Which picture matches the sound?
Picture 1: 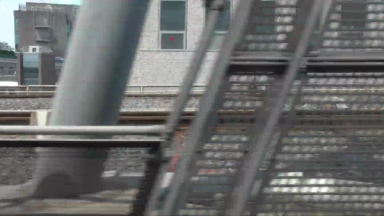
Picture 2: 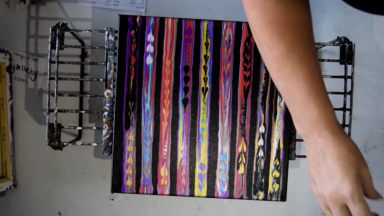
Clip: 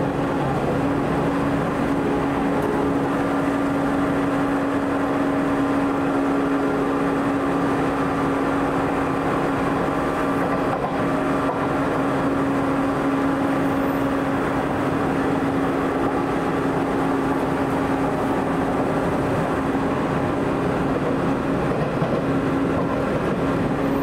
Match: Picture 1